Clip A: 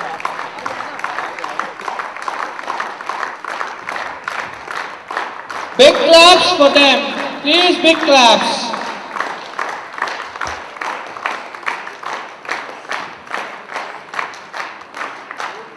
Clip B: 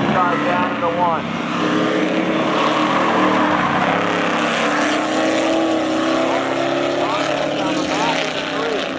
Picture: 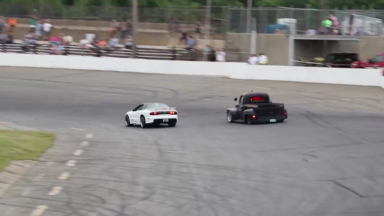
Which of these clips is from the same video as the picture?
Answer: B